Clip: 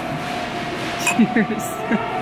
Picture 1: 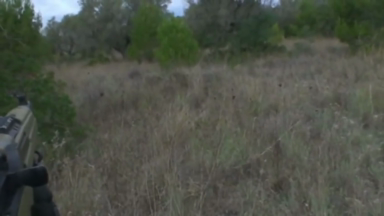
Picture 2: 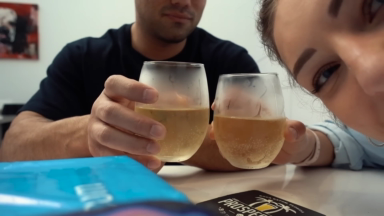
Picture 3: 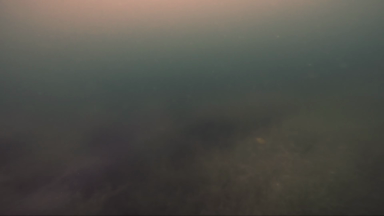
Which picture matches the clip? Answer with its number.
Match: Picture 2